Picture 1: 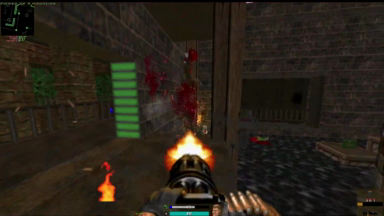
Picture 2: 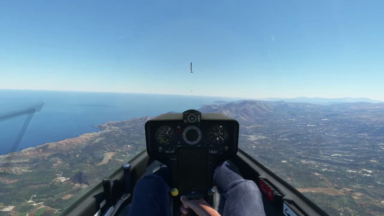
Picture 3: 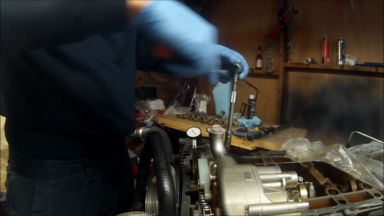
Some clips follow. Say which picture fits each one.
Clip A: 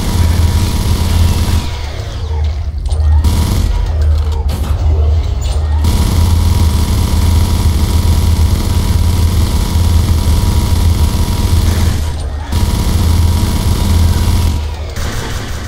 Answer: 1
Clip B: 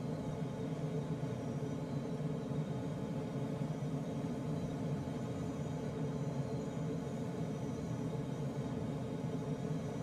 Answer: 2